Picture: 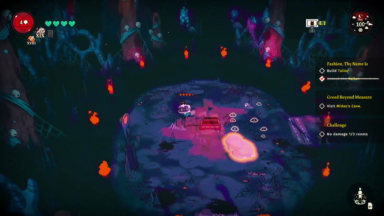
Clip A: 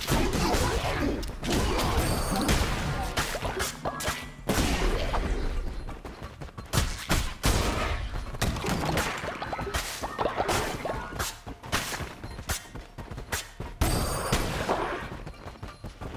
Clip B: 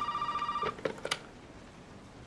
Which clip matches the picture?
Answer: A